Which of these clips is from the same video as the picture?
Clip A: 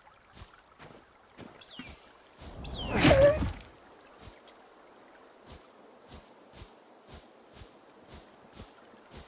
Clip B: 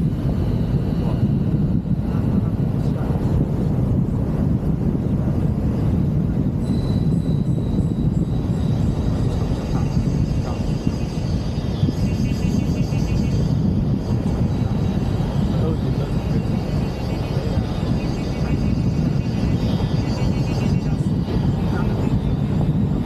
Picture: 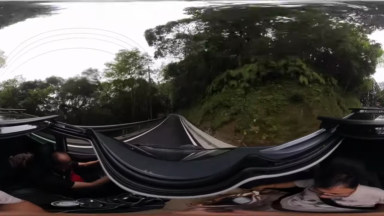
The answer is B